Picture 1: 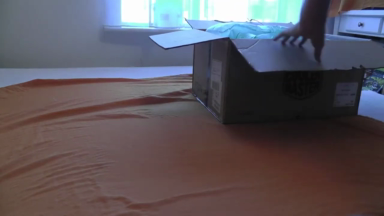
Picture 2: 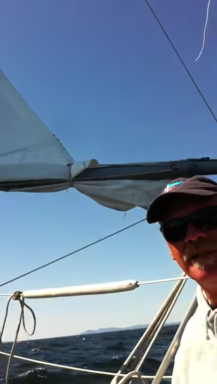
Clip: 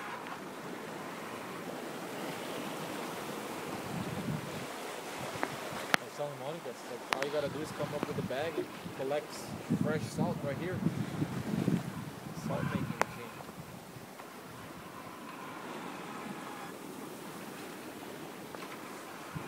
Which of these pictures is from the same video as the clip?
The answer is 2